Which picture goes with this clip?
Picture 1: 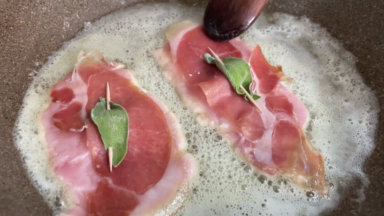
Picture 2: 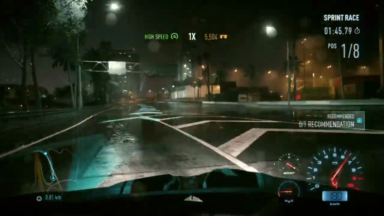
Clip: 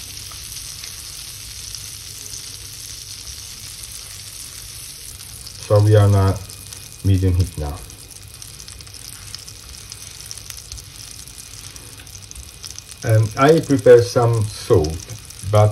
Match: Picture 1